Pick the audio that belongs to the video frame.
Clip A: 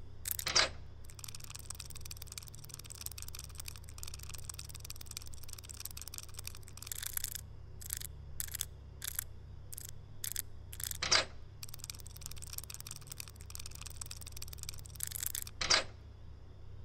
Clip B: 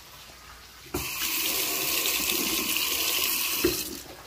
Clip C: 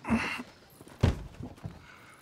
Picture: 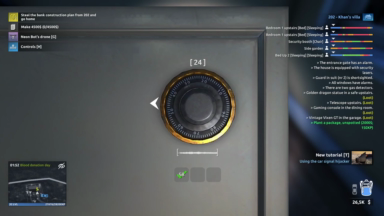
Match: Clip A